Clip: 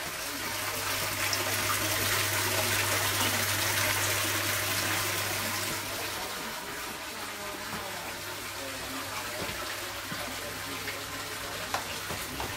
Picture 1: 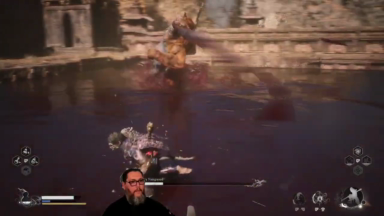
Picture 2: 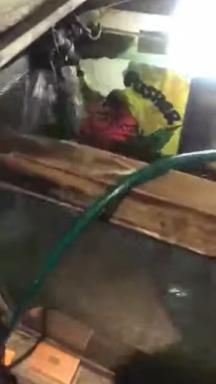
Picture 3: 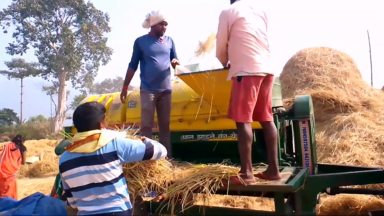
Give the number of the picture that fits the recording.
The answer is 2